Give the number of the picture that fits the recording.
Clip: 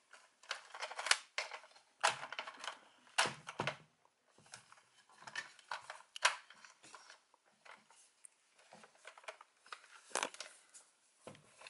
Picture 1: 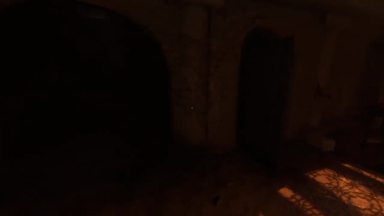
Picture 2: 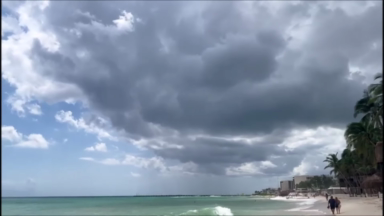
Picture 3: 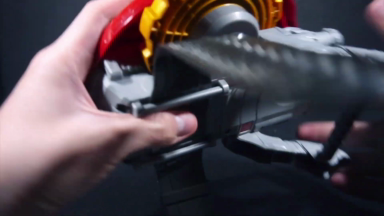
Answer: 3